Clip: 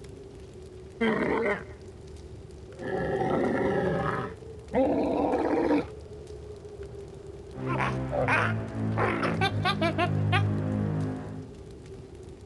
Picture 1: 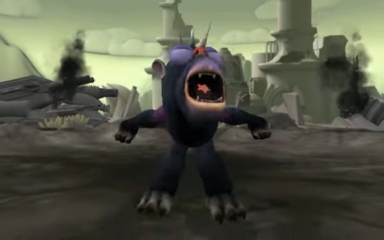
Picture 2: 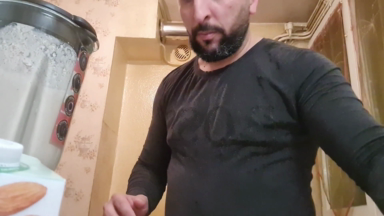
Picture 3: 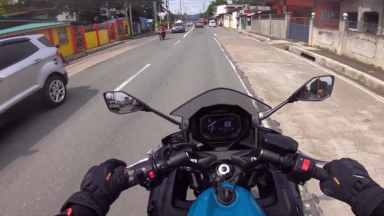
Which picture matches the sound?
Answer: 1